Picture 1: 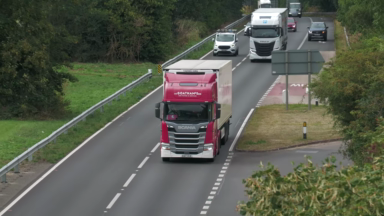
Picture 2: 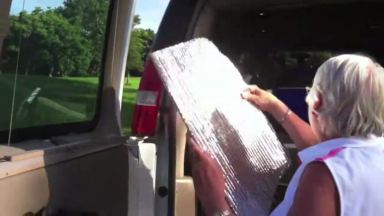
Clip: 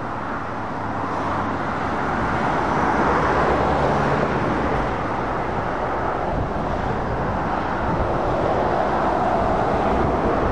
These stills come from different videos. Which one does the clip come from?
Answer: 1